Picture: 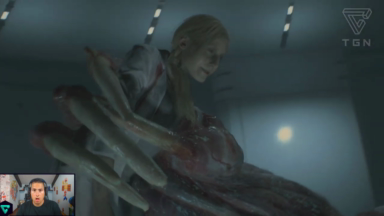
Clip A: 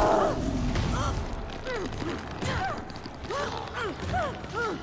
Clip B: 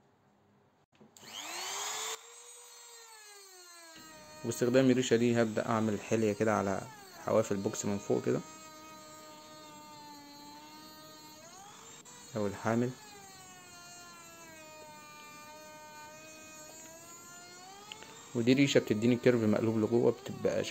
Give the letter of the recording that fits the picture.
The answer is A